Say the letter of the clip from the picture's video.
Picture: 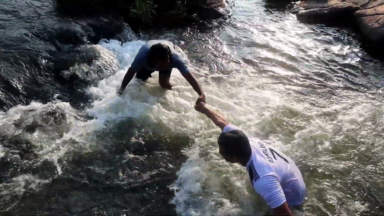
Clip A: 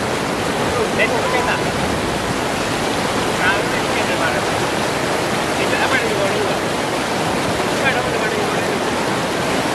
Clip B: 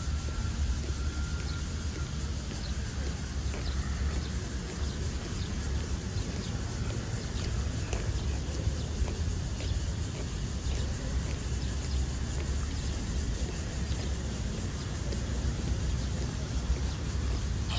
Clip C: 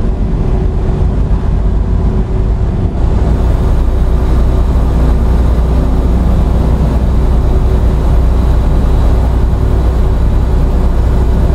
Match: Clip A